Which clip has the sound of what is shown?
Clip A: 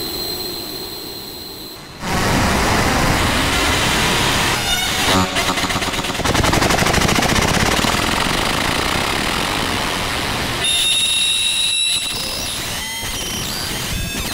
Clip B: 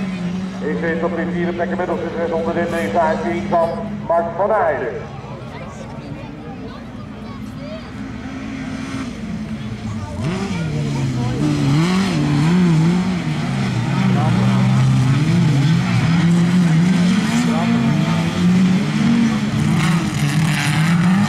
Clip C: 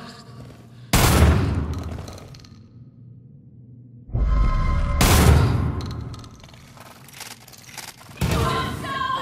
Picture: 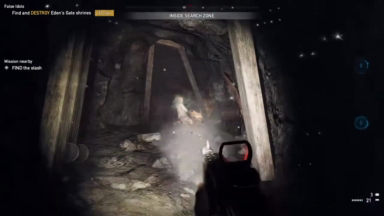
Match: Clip C